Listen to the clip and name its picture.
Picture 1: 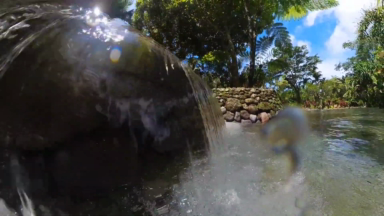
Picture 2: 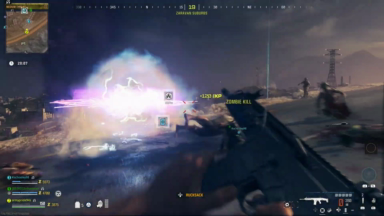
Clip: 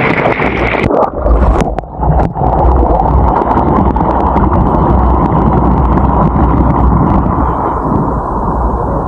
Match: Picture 1